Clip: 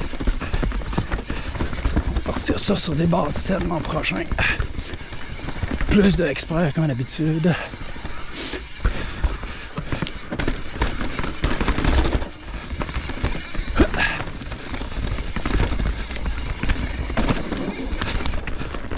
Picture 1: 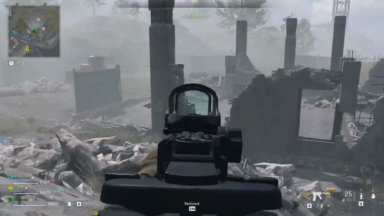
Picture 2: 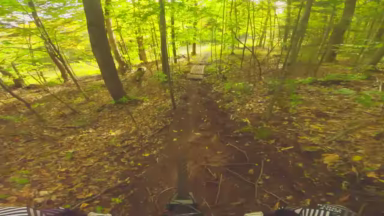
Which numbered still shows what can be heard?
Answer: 2